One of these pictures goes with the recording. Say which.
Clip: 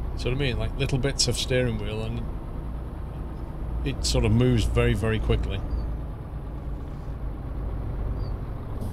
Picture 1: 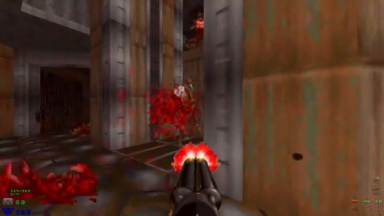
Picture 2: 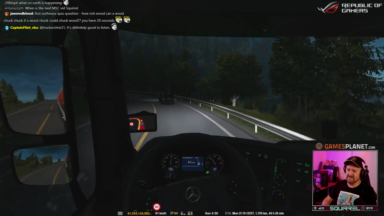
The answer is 2